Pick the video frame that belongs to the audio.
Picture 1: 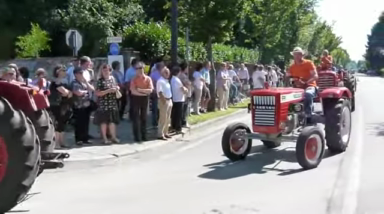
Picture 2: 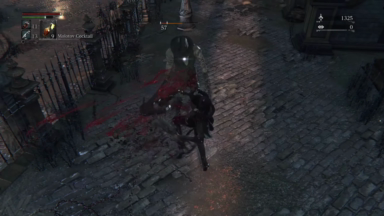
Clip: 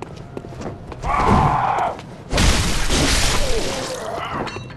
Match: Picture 2